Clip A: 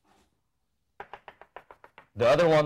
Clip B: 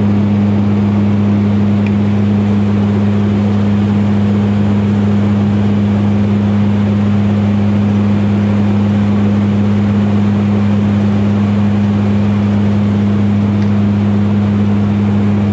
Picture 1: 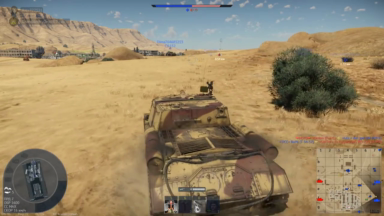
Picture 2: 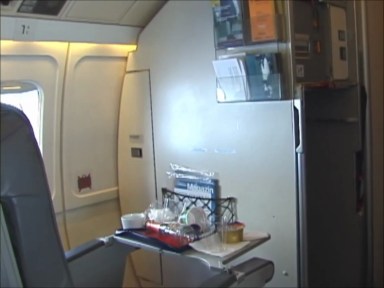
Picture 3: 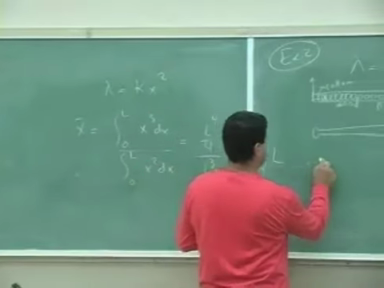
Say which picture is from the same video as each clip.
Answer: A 3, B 2